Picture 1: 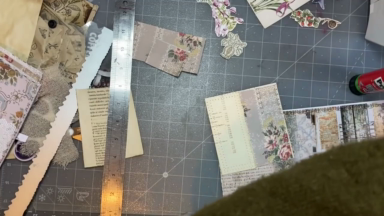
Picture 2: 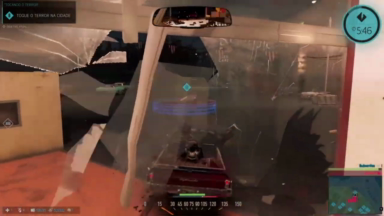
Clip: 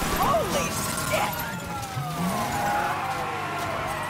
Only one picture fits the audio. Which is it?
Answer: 2